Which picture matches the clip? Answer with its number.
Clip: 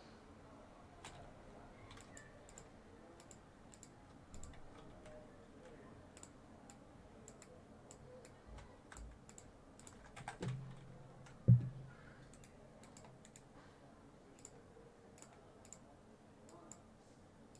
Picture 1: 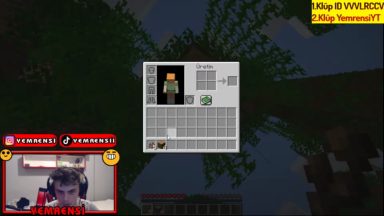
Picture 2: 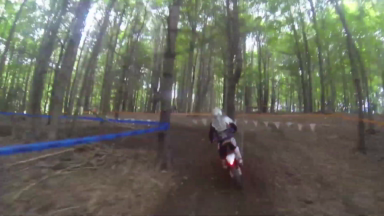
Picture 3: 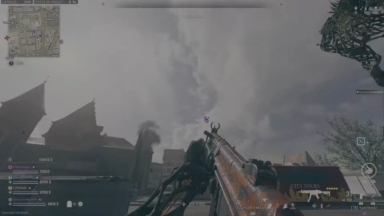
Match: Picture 1